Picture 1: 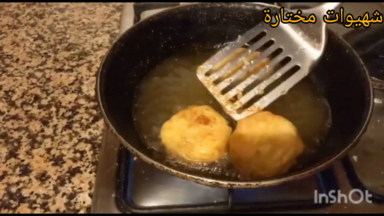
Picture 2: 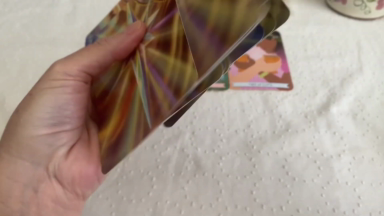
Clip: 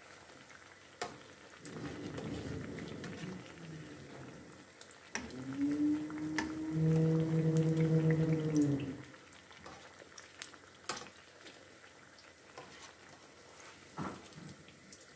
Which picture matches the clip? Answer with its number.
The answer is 1